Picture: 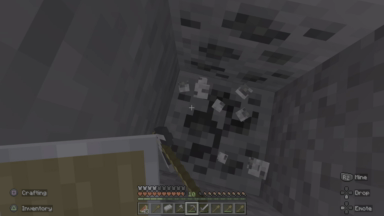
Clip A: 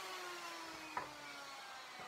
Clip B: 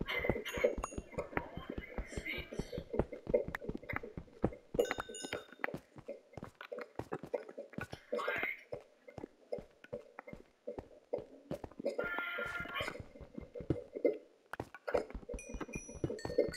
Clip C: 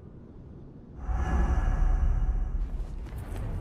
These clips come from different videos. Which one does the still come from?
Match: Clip B